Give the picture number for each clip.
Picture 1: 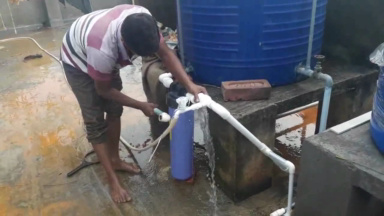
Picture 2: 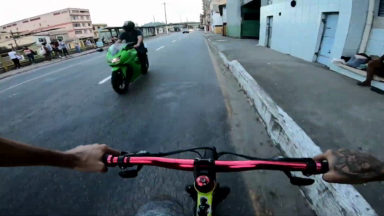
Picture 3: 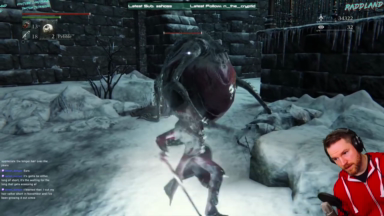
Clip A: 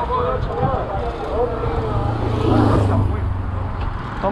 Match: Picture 2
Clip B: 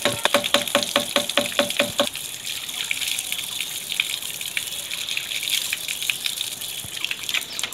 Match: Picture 1